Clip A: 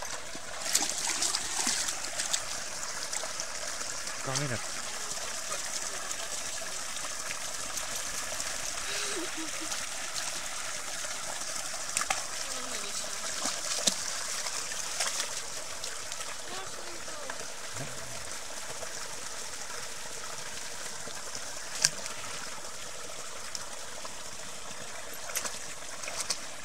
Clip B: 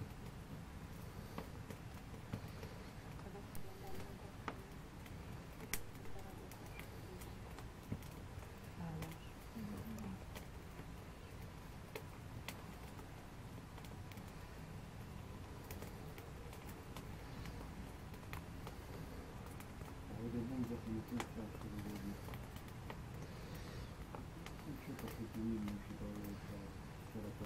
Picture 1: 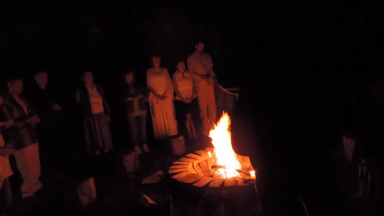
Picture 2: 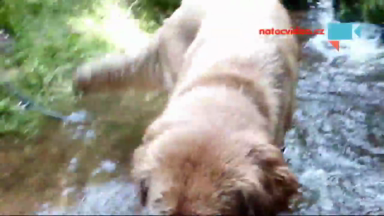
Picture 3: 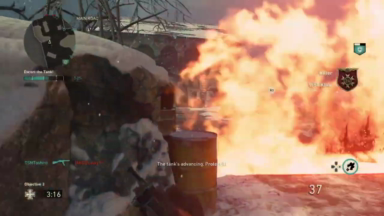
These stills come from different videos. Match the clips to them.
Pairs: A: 2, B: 1